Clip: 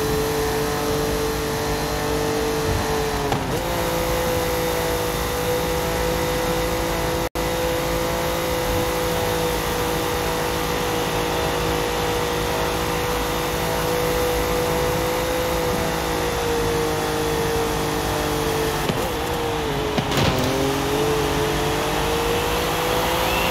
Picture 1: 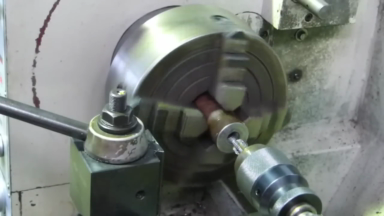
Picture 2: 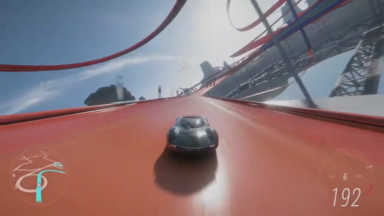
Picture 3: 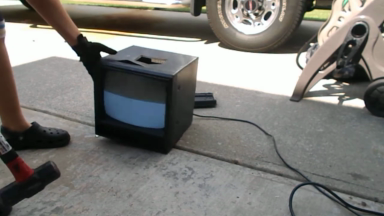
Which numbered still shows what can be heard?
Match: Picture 2